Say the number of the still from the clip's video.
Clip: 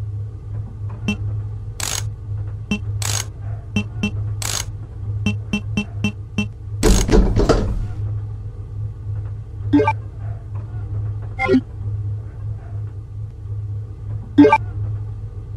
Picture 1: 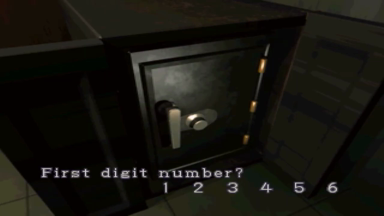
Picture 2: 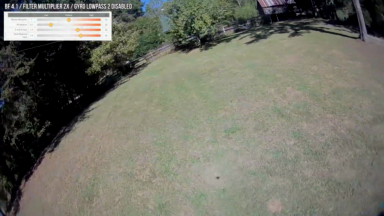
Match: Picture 1